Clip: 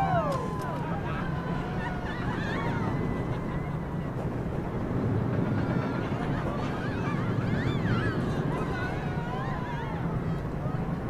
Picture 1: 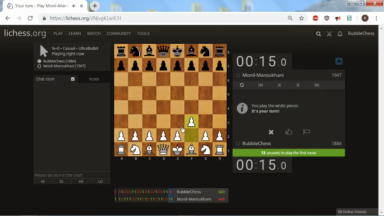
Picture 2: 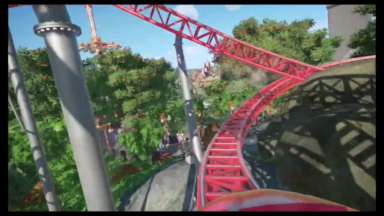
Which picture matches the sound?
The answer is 2